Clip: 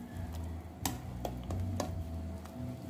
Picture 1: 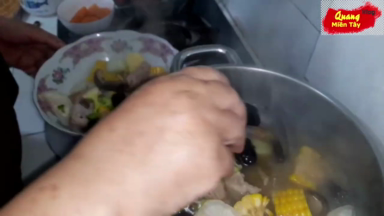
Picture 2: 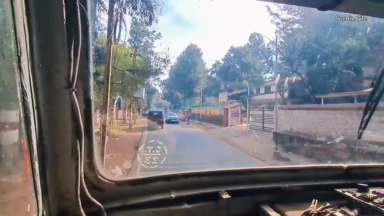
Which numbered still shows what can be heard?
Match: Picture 1